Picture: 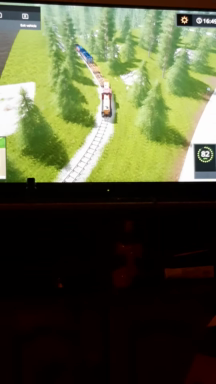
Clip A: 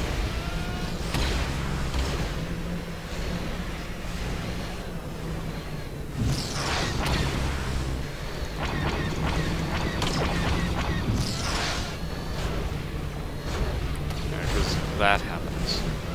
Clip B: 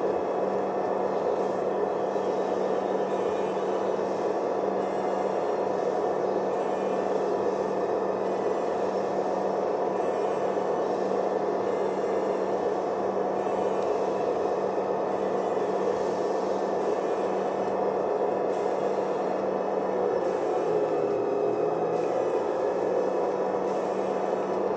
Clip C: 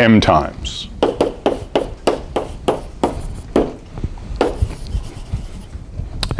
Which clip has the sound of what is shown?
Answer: B